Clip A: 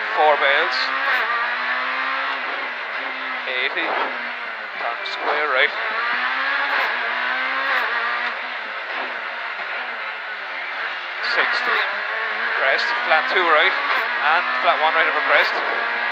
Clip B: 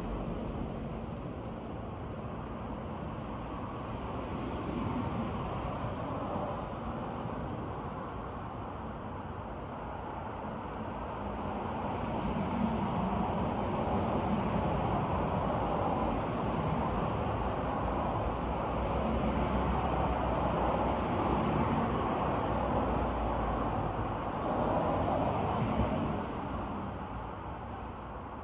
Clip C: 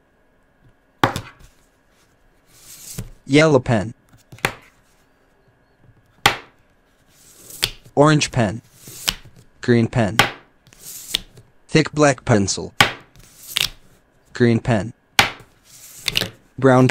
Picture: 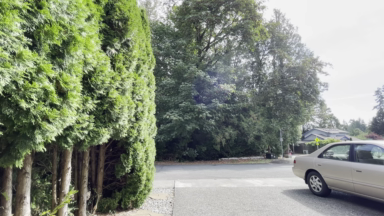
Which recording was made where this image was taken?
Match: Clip B